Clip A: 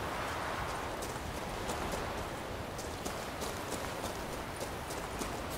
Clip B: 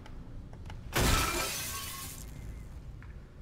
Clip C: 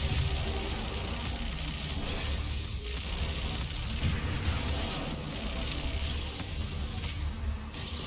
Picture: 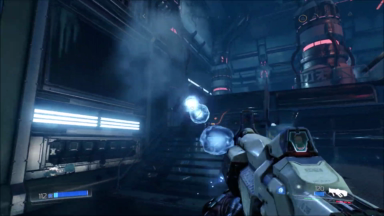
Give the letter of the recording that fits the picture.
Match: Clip C